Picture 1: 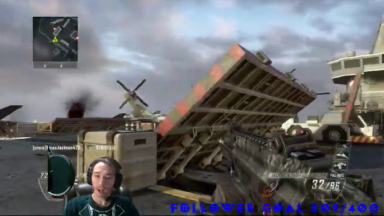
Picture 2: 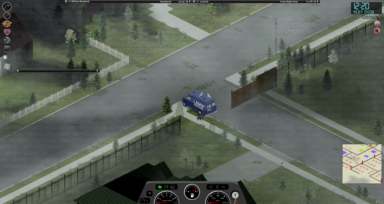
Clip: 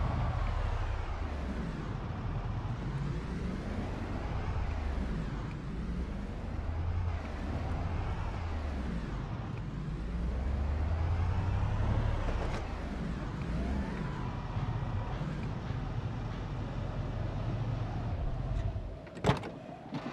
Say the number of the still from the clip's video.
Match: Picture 2